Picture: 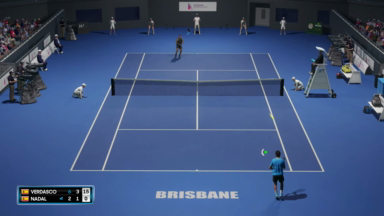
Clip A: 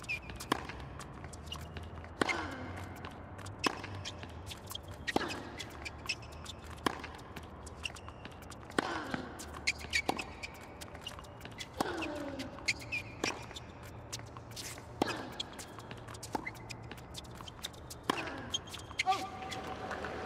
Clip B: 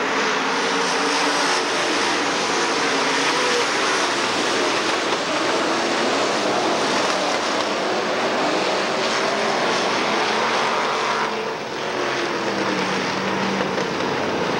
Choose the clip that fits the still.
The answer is A